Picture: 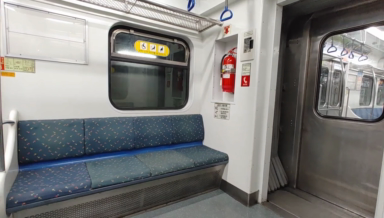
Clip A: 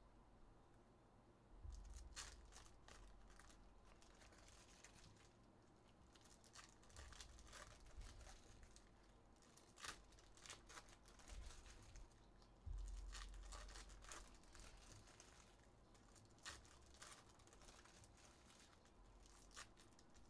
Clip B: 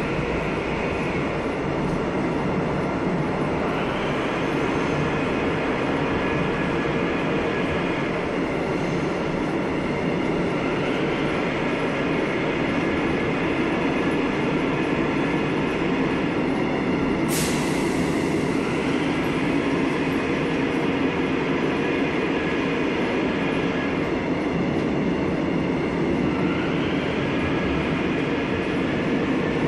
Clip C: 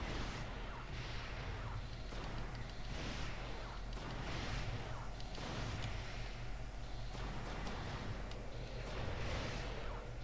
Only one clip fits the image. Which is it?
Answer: B